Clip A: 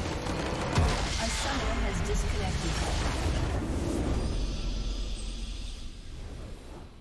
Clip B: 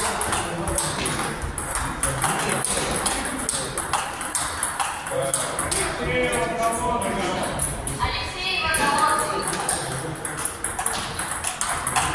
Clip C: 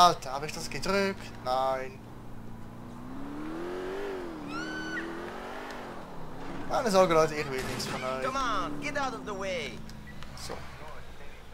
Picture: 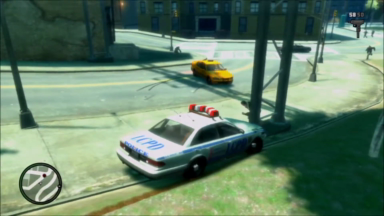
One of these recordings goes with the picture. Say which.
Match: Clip C